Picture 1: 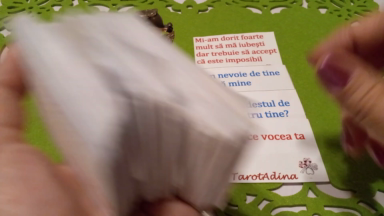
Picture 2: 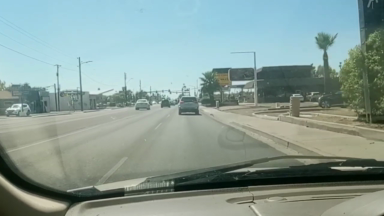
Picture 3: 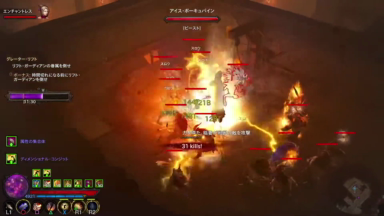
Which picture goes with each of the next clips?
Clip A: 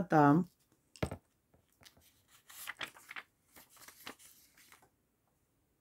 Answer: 1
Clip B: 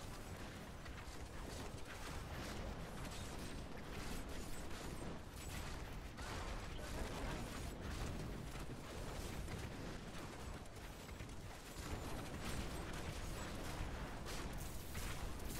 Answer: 3